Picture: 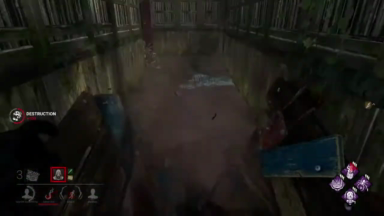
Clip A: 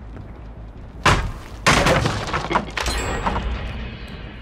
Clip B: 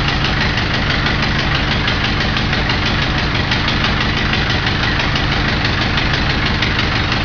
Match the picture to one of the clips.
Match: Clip A